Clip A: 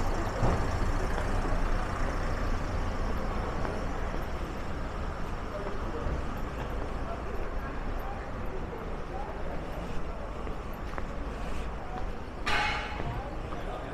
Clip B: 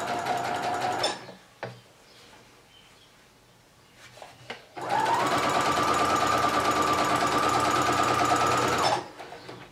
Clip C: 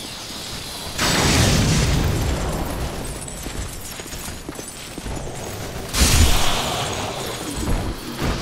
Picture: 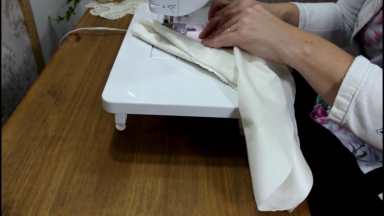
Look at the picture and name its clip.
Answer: B